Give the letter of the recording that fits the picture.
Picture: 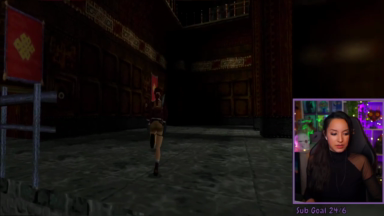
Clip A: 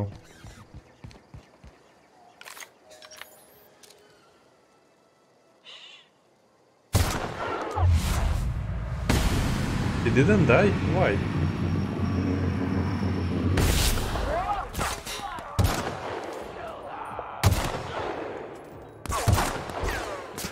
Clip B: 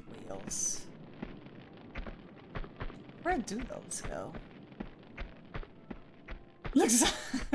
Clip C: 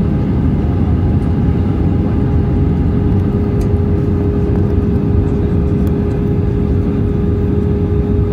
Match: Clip B